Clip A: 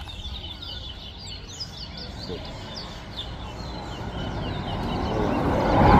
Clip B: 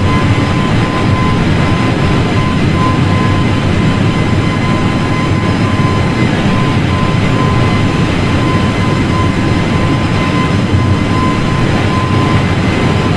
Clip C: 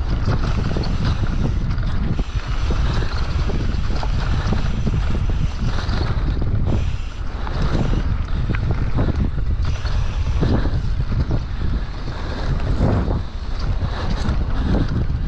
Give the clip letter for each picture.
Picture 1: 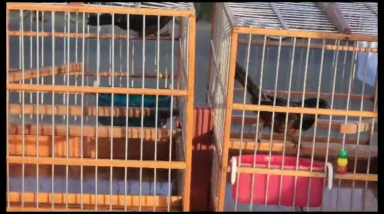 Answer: A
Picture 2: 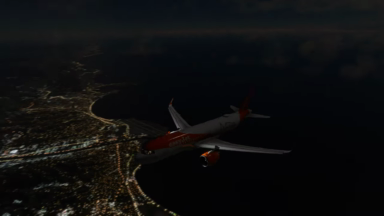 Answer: B